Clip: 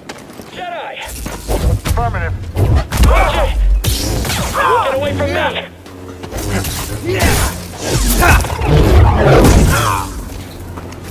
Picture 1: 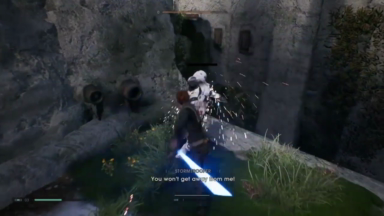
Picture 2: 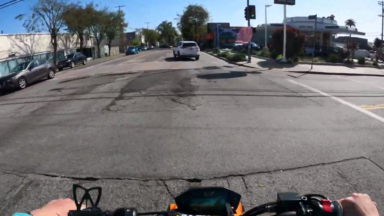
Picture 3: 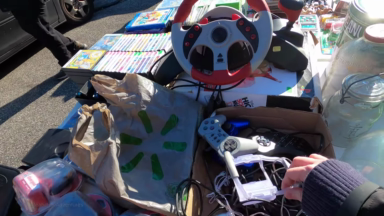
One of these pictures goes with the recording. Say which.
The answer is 1